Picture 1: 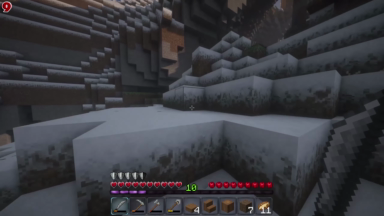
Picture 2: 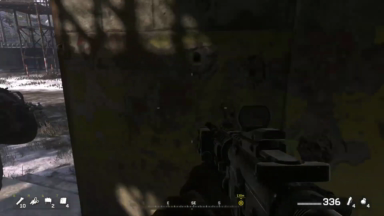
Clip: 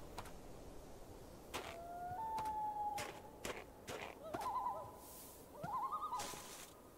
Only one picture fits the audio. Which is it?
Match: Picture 1